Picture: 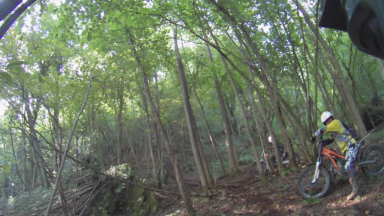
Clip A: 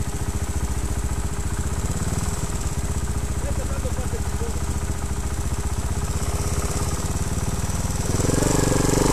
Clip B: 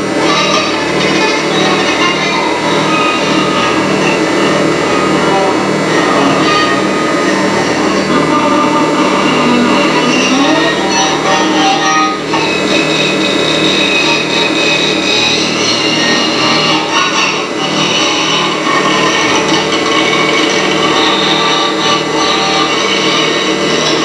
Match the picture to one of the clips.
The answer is A